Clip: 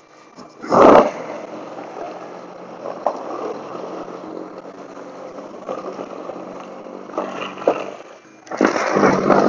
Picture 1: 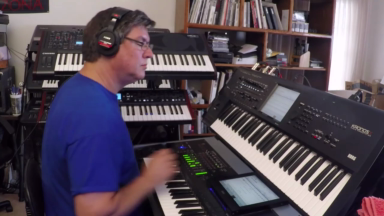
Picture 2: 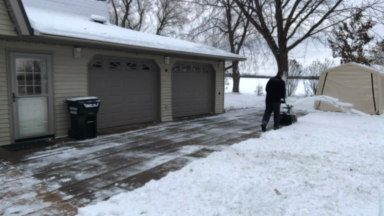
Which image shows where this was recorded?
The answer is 2